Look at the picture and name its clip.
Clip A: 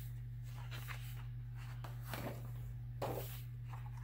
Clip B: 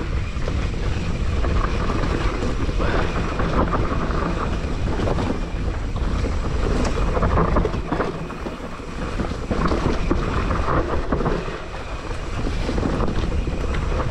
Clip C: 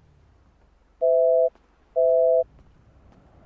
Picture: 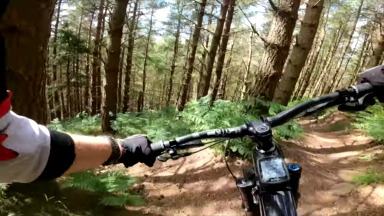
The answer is B